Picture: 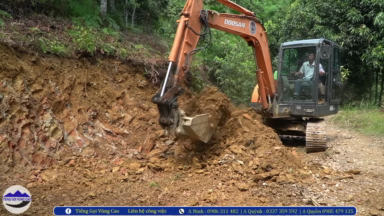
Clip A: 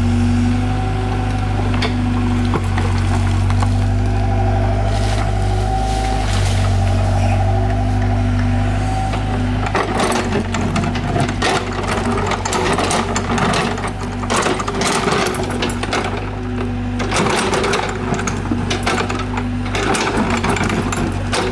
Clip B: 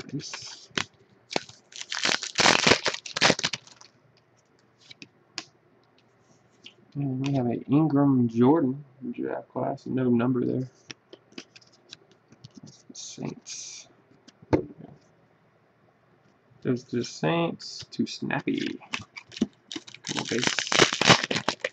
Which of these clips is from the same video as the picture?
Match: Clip A